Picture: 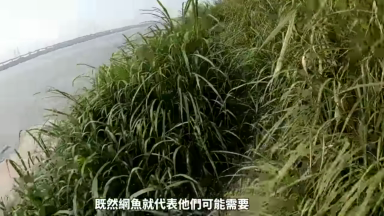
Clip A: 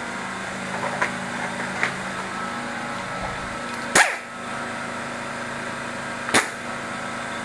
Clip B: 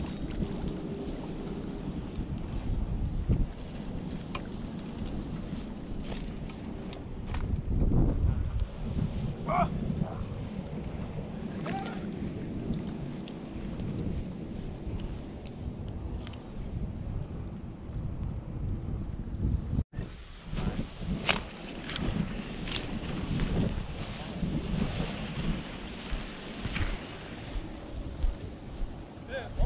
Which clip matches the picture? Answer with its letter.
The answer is B